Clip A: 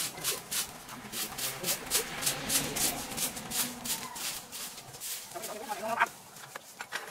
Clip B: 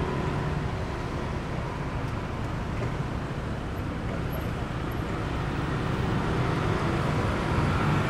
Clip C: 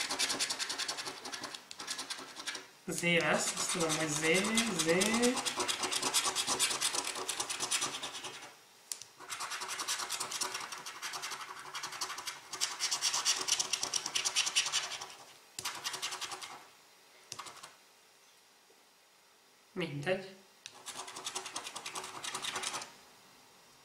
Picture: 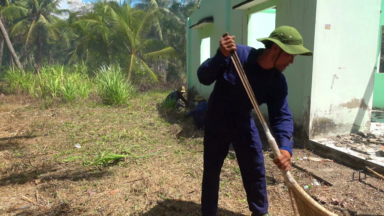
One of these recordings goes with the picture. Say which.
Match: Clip A